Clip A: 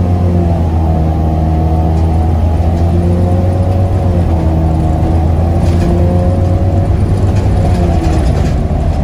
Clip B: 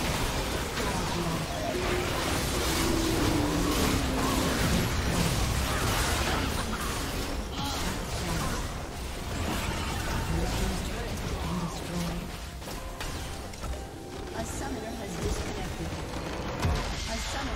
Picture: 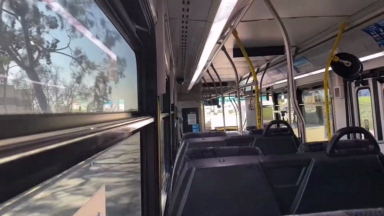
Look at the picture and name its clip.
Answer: A